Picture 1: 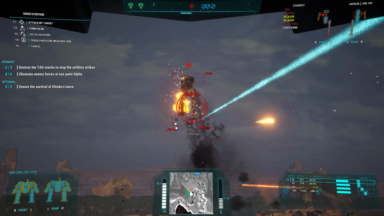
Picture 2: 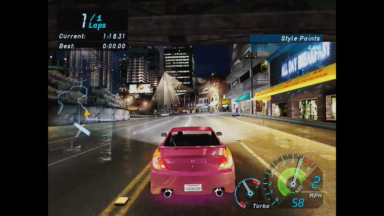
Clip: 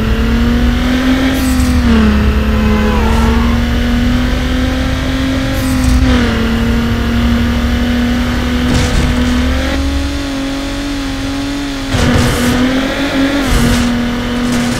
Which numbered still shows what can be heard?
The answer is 2